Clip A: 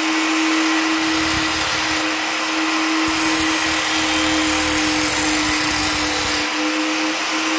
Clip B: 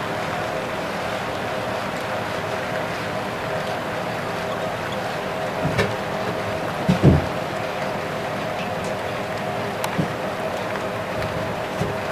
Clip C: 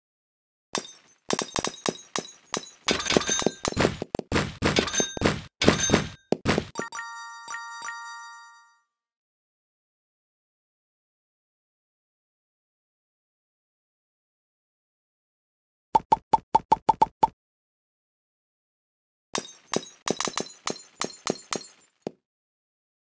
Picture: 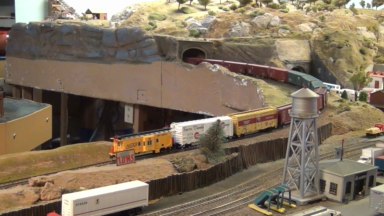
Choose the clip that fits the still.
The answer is B